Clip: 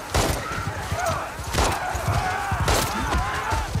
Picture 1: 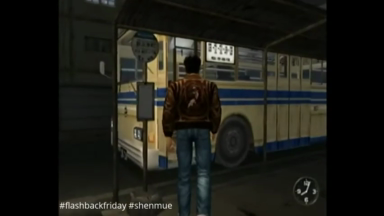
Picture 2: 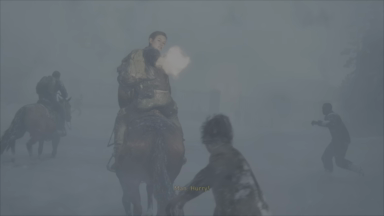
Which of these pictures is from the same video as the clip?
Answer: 2